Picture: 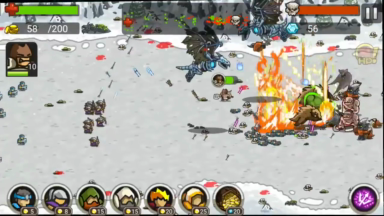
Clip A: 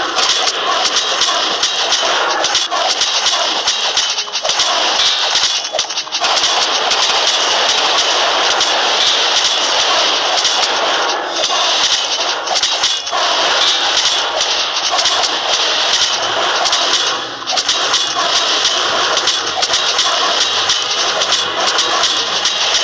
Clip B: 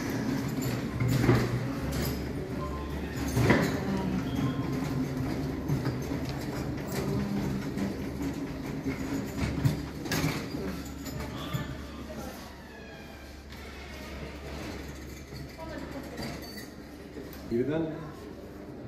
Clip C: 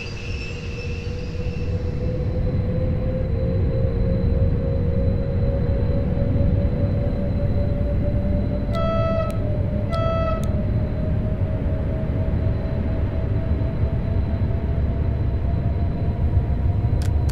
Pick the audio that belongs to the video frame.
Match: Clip A